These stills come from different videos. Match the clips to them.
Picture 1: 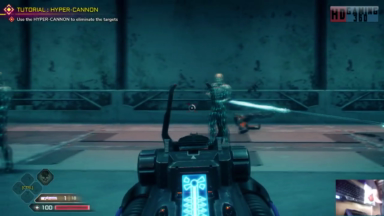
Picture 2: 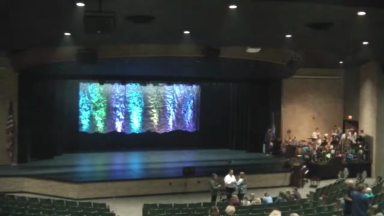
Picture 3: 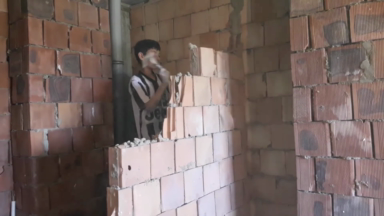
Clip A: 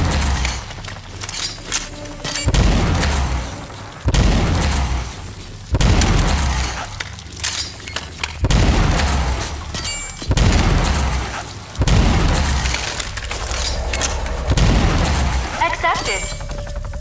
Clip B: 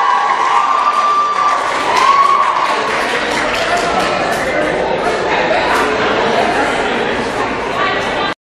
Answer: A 1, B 2